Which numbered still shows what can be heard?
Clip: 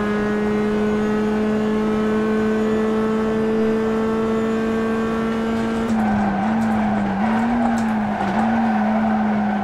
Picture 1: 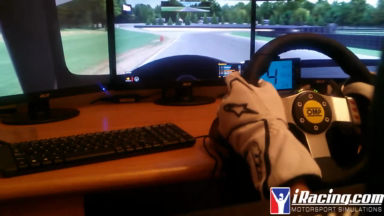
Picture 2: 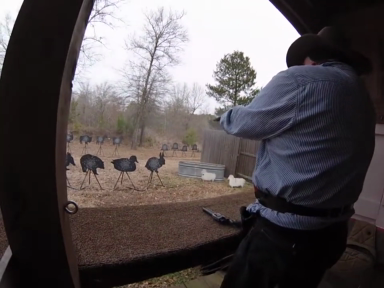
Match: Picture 1